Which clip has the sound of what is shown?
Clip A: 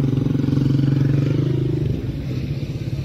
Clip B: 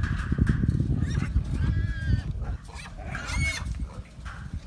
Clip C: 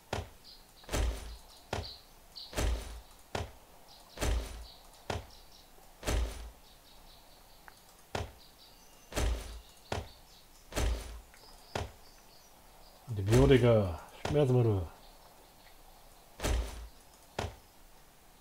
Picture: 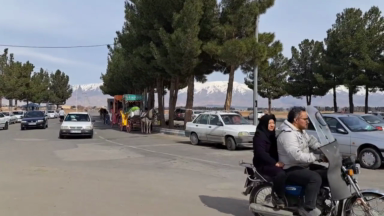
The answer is A